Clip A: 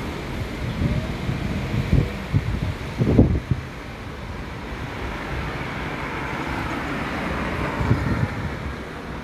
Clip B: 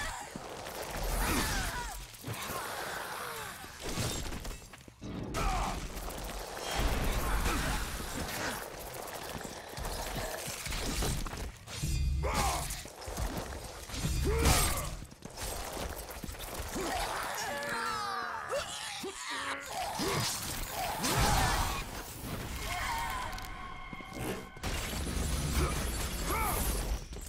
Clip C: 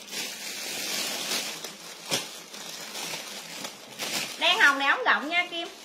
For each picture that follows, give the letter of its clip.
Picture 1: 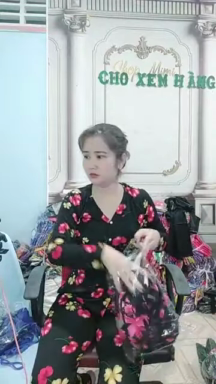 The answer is C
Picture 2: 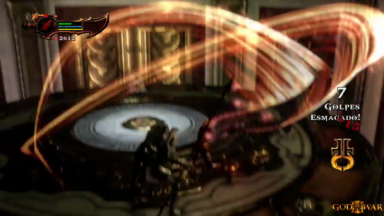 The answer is B